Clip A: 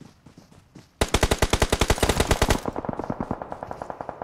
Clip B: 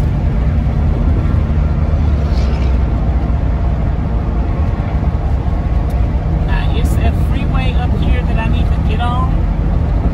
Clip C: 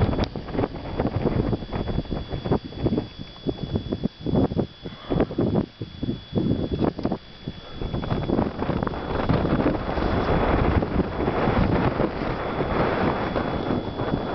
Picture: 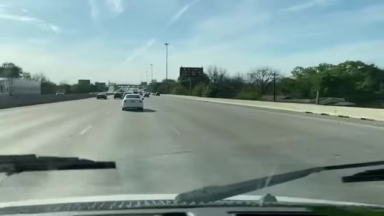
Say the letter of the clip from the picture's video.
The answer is B